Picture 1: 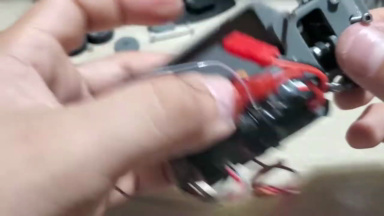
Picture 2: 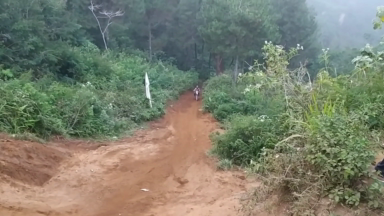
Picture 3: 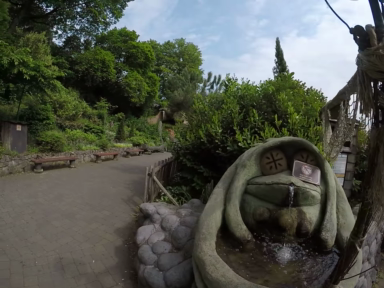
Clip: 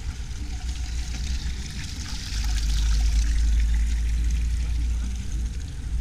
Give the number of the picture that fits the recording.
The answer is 3